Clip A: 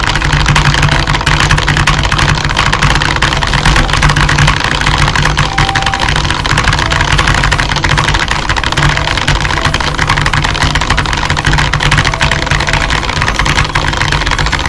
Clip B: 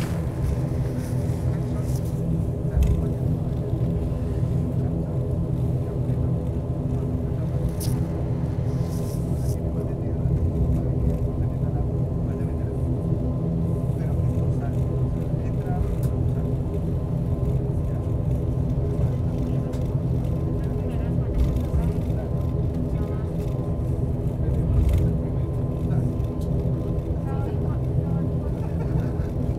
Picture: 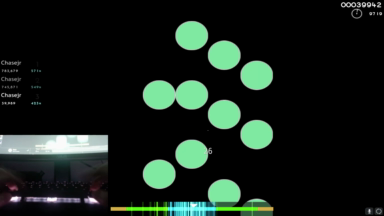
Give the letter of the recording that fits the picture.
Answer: A